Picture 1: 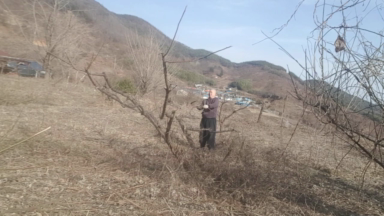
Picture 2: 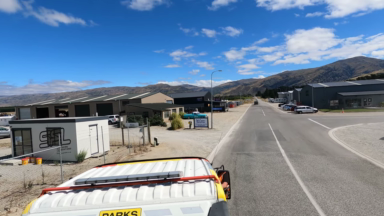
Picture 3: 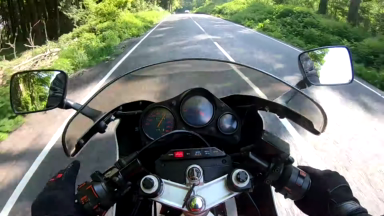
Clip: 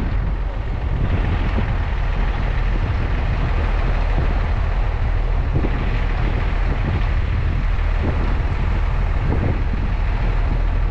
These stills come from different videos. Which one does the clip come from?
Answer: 2